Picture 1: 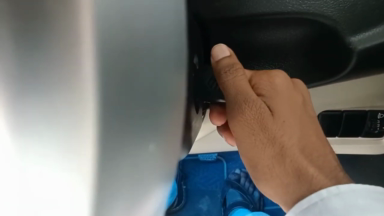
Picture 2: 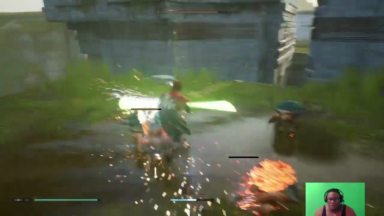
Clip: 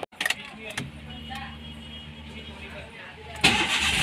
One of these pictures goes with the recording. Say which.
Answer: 1